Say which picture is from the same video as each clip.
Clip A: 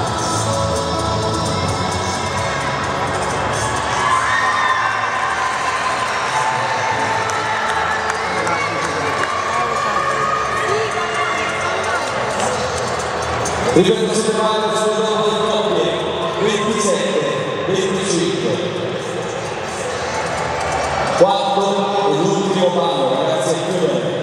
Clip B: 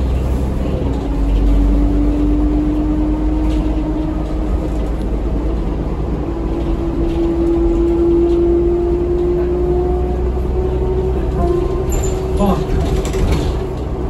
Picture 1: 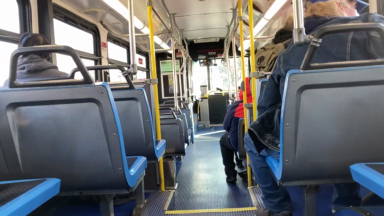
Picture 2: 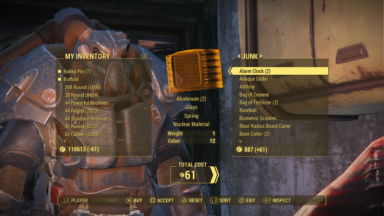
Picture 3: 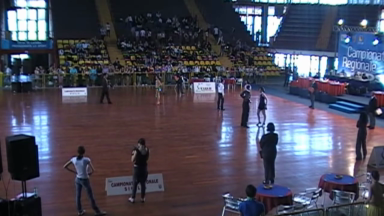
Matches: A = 3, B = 1